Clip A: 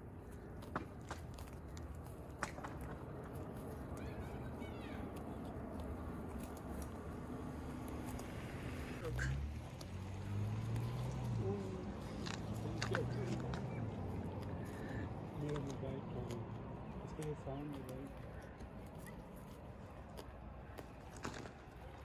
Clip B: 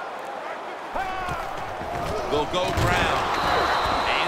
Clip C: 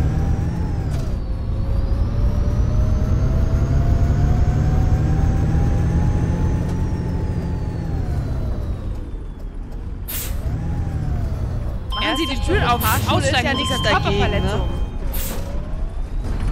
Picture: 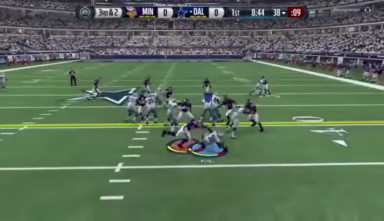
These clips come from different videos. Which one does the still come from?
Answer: B